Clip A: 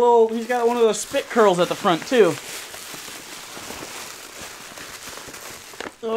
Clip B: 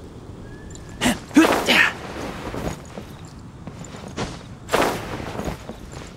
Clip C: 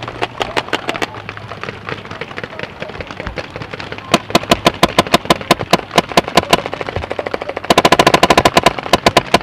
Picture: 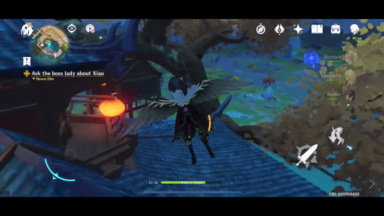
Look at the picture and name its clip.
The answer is B